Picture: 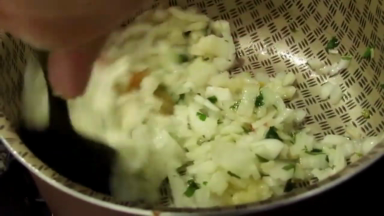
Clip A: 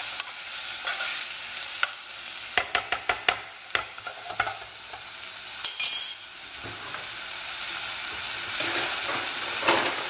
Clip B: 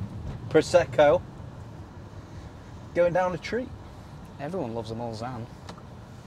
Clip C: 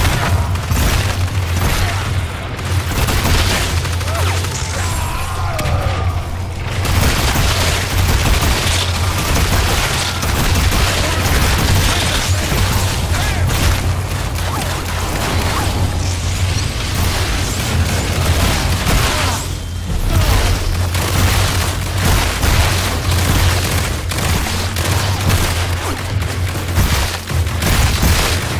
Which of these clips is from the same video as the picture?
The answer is A